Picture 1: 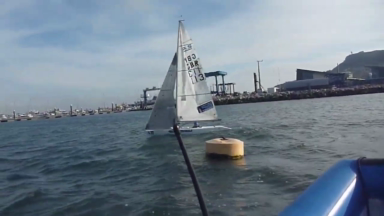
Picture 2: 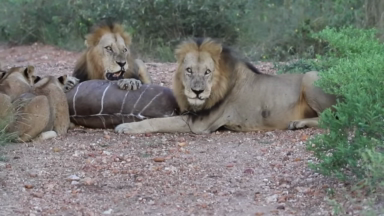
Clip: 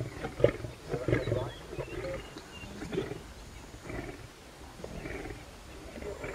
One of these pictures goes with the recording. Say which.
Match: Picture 2